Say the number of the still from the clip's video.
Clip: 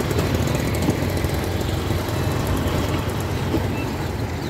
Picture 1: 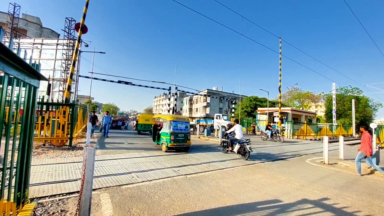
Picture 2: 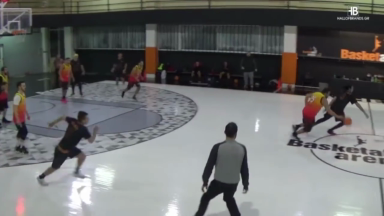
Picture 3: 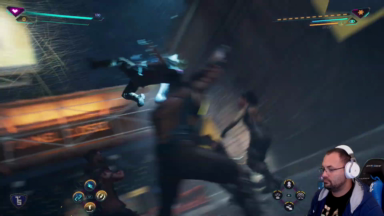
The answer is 1